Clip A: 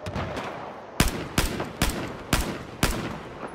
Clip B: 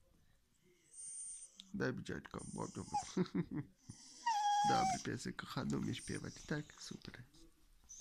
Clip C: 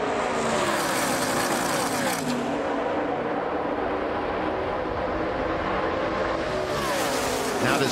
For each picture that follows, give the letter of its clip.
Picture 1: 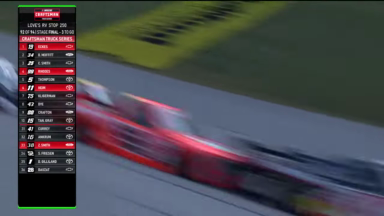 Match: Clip C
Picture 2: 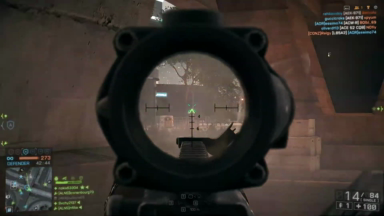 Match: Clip A